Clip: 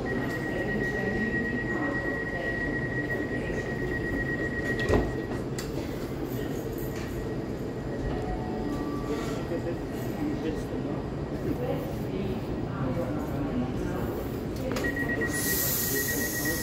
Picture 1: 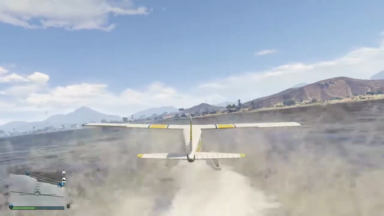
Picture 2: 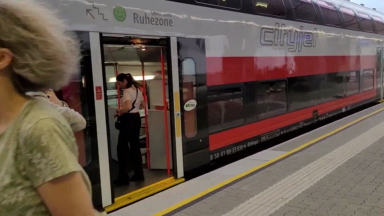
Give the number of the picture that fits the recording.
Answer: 2